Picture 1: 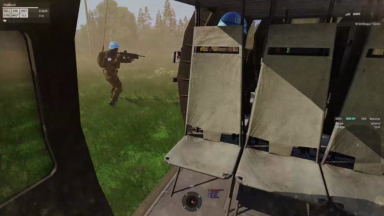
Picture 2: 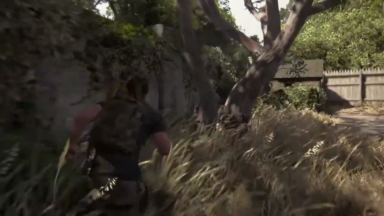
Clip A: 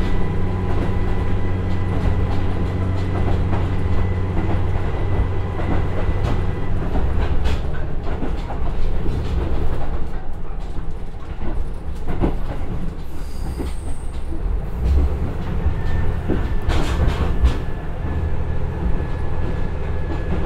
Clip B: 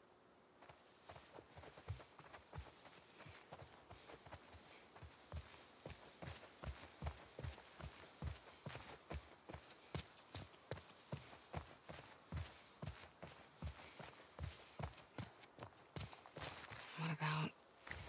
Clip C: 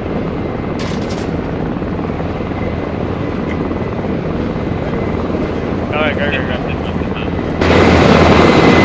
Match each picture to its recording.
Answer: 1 C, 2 B